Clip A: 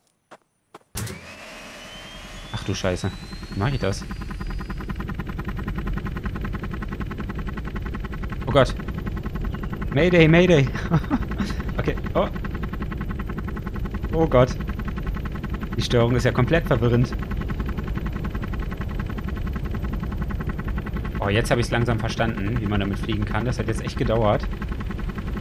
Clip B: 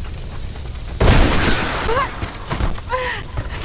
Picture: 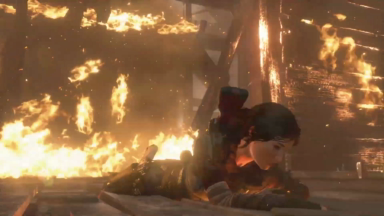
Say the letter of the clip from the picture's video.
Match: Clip B